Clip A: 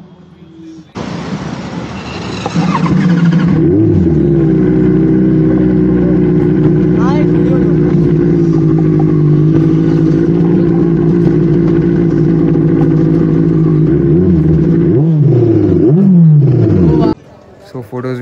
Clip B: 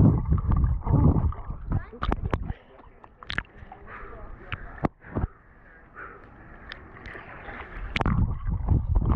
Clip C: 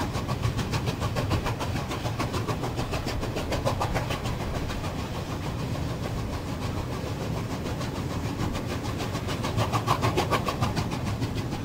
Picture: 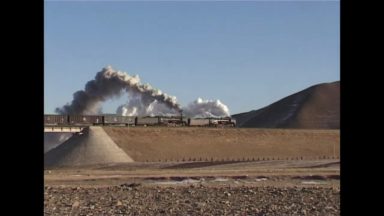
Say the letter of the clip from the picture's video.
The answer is C